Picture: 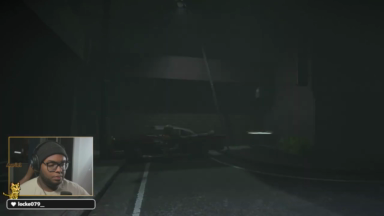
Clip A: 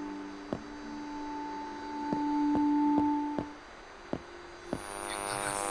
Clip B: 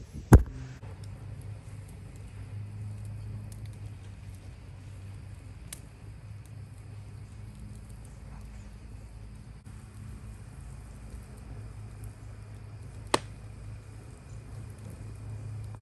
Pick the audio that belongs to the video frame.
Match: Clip A